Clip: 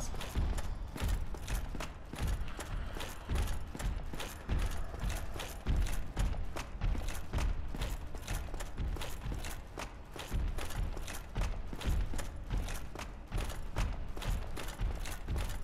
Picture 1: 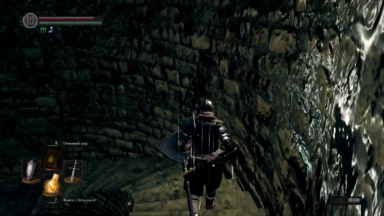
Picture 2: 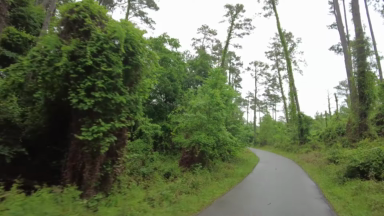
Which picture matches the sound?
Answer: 1